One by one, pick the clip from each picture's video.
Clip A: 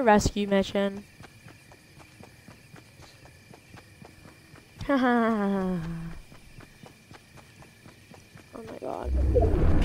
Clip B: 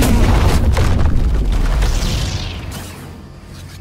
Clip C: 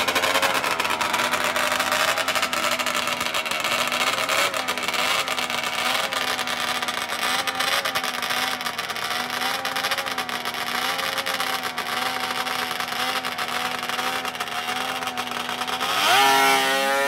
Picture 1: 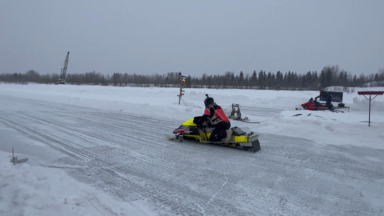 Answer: C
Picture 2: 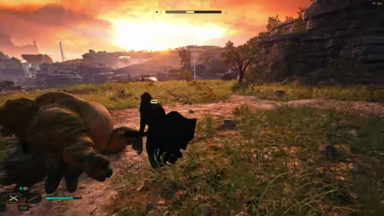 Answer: B